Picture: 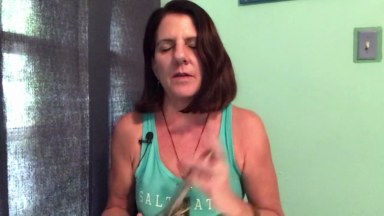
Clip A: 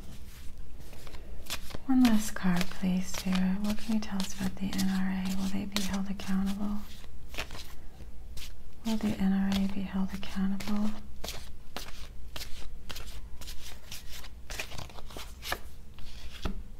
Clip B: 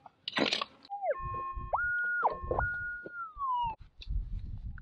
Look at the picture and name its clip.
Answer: A